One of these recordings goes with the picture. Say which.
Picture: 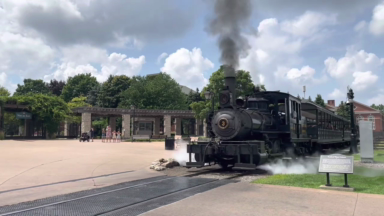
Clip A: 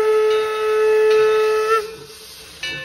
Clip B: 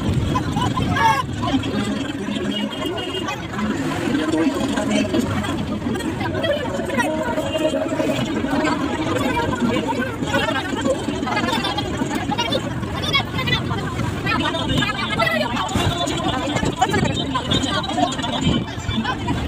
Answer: A